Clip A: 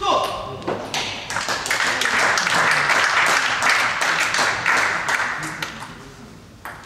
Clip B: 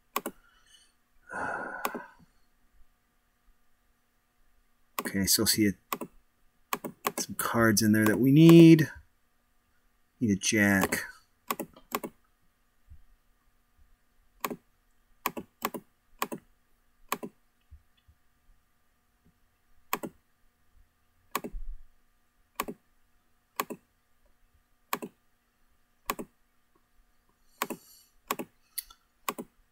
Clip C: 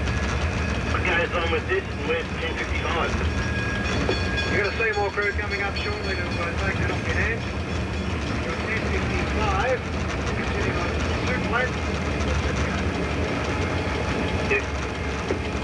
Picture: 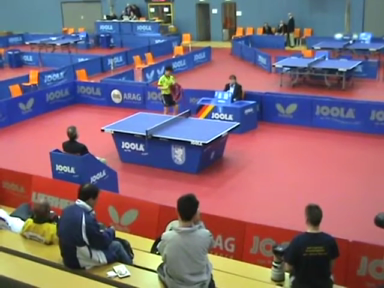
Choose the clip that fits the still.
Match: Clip A